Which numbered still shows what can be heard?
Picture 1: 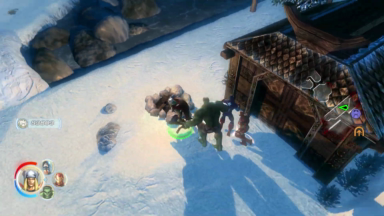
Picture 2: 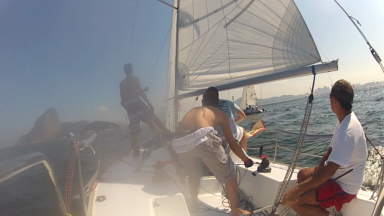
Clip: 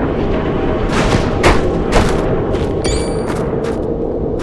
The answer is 1